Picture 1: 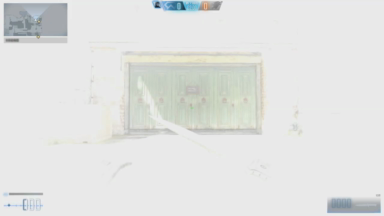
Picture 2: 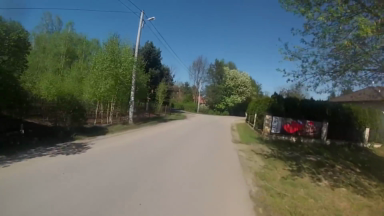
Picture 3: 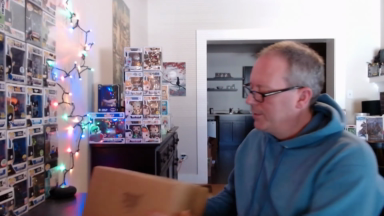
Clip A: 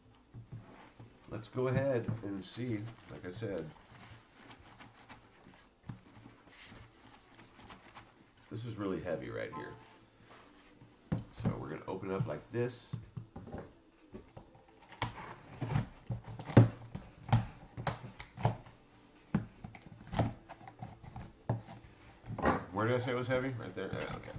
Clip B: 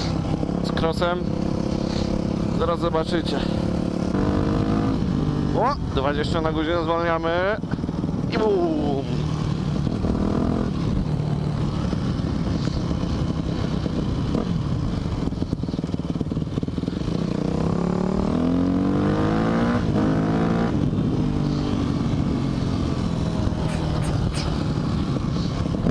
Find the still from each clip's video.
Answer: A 3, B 2